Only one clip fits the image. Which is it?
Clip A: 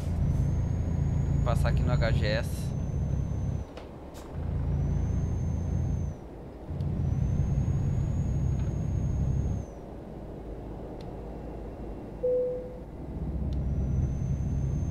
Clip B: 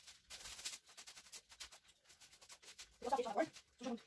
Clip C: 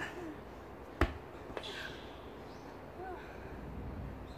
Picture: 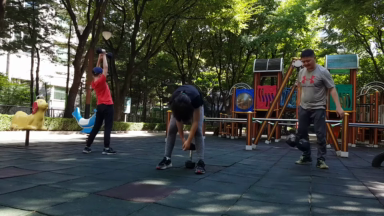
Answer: C